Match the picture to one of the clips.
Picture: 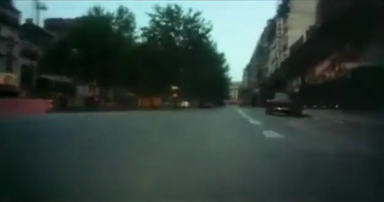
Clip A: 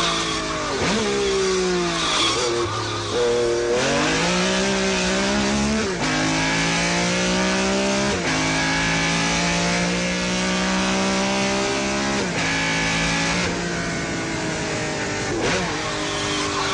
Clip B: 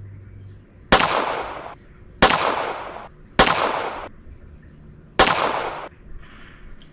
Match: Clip A